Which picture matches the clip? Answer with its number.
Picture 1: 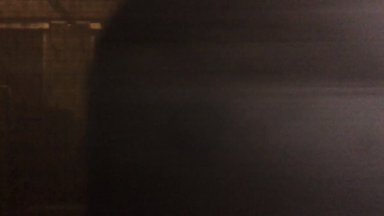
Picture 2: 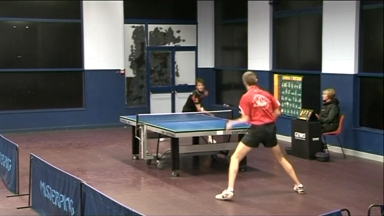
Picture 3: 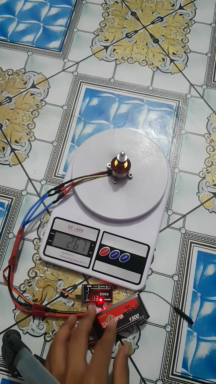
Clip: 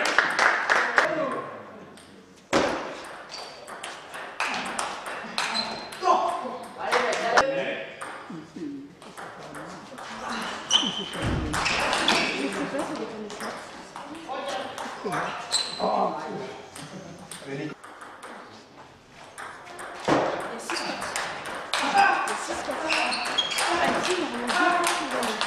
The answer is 2